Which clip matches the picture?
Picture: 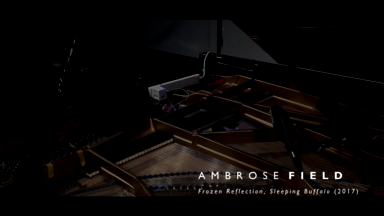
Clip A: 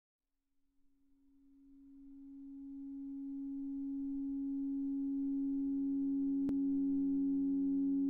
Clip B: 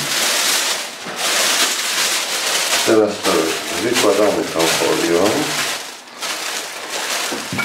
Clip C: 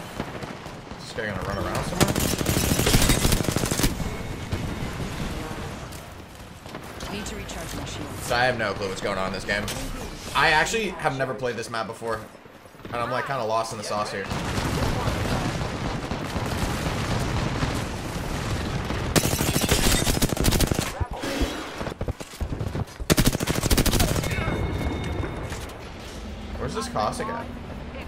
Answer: A